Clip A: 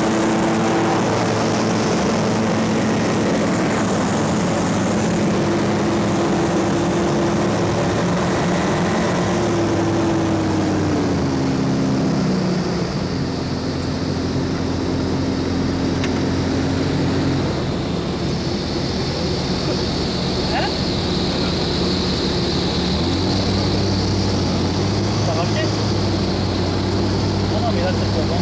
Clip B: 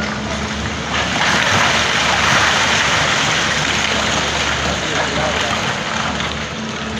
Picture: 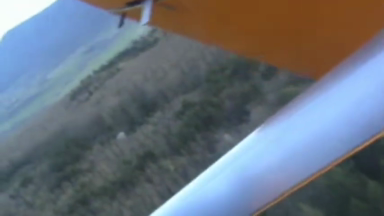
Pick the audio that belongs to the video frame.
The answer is A